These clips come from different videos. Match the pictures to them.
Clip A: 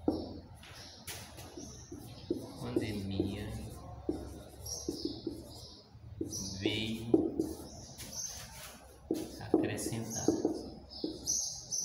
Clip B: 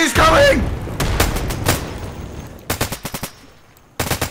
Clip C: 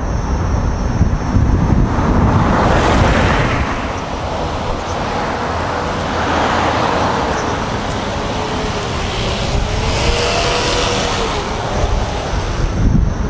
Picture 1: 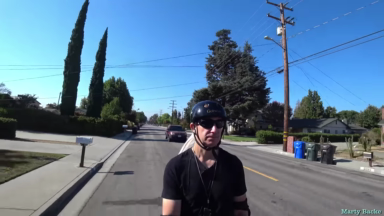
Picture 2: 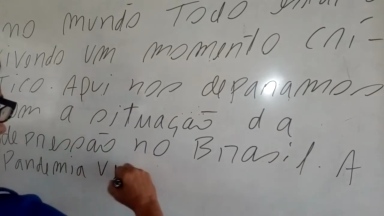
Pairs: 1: C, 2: A